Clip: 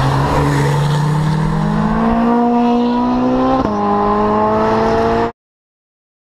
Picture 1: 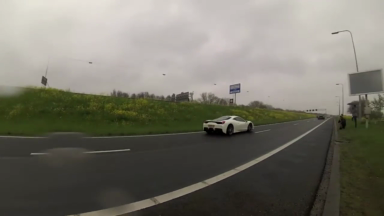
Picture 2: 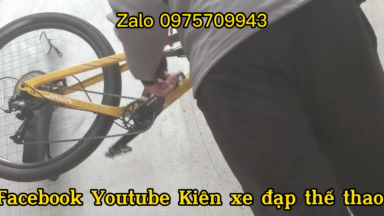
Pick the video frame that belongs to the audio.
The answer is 1